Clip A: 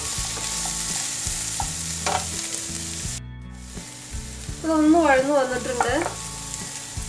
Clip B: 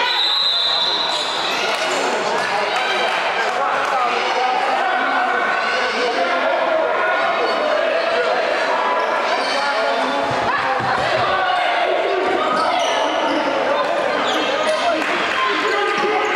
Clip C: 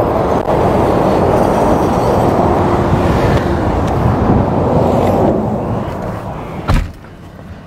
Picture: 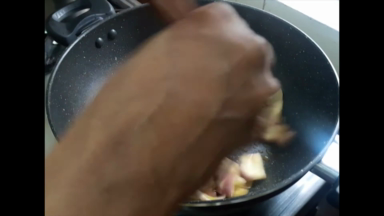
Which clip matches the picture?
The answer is A